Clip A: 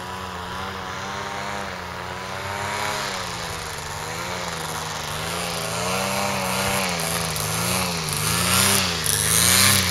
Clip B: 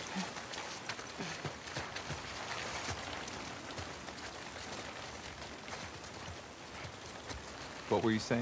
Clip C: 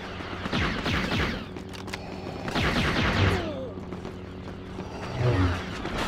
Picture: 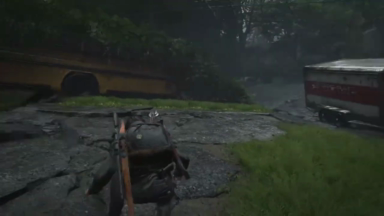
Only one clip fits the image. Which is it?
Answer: B